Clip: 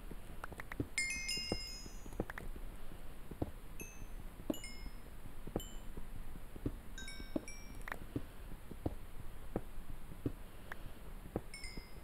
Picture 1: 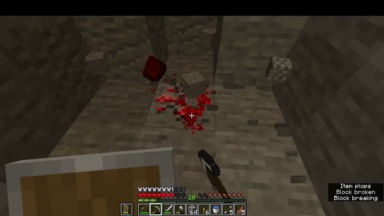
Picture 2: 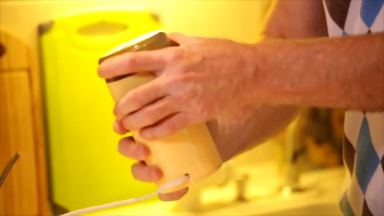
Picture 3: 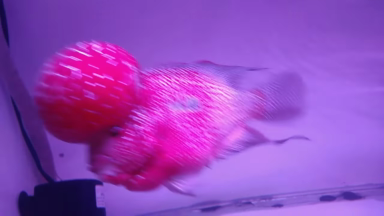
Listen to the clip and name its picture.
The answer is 1